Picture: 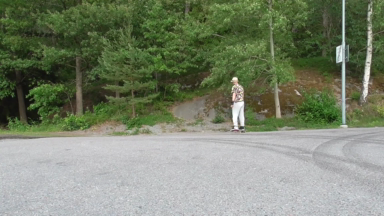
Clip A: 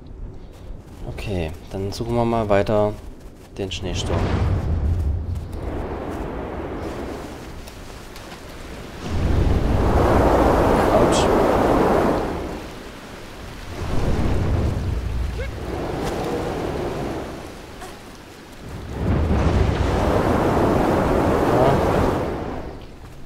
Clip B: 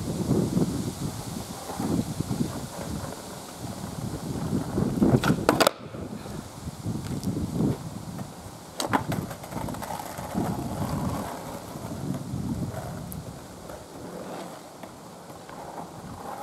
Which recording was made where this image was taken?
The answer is B